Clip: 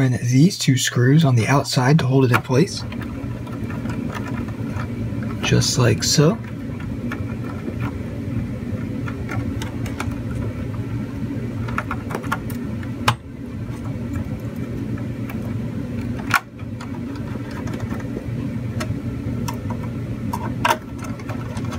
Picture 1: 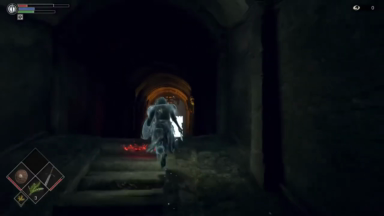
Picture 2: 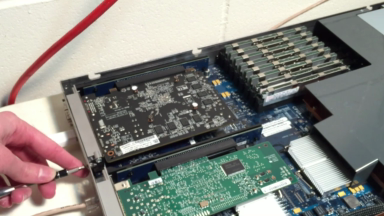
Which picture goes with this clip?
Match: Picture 2